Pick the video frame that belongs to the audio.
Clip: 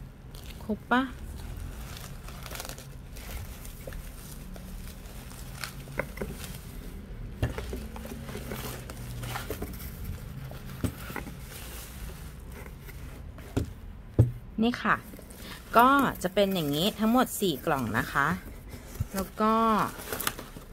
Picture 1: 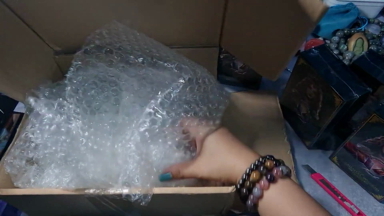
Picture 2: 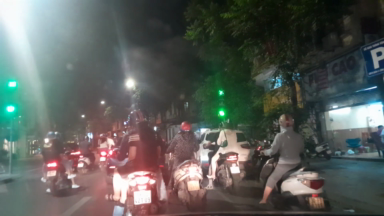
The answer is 1